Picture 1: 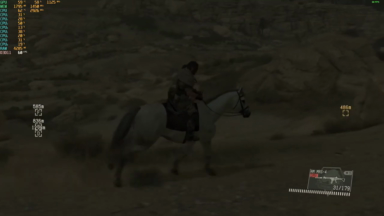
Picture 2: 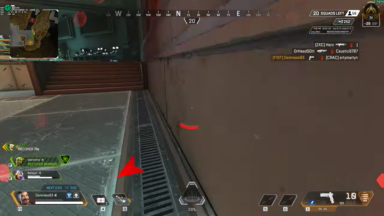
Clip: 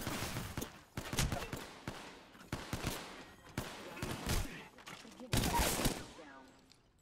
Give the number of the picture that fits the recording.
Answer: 2